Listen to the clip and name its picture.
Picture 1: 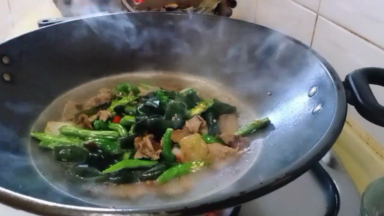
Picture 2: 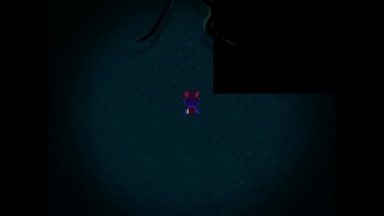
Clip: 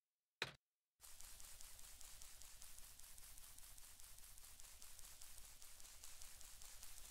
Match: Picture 2